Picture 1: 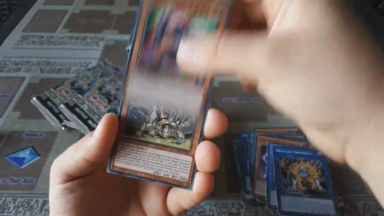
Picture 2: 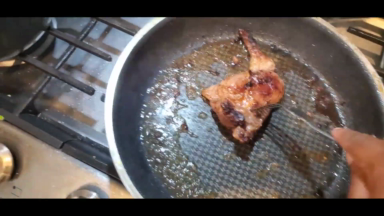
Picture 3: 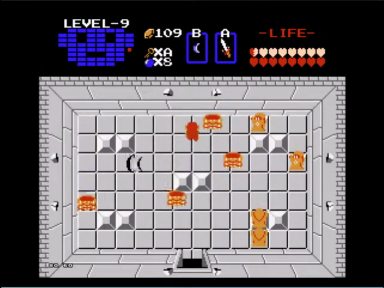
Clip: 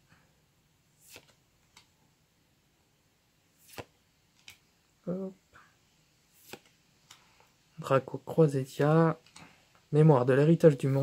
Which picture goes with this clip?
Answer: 1